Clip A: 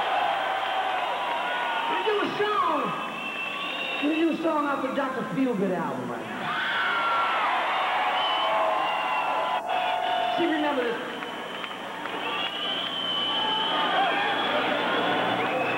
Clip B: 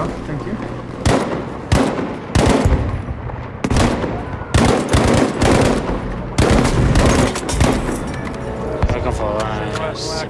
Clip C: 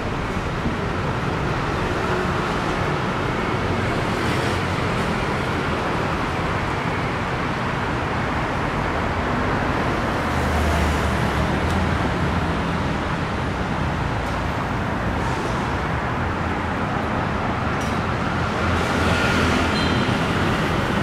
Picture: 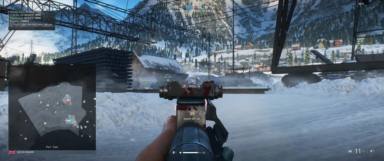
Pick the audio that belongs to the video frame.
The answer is B